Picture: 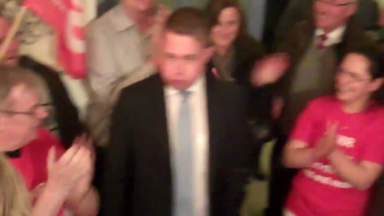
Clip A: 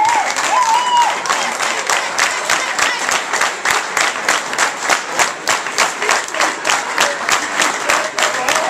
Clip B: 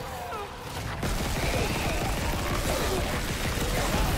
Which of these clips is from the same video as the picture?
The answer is A